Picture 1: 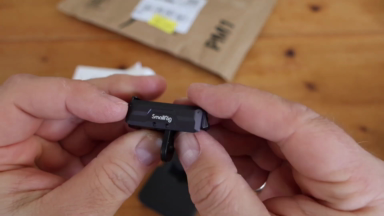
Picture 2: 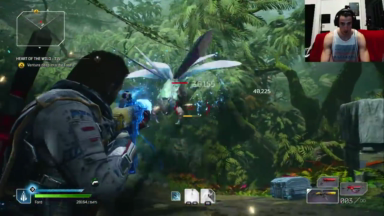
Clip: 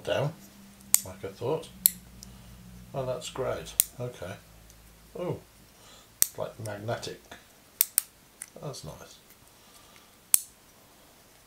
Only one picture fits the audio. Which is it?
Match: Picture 1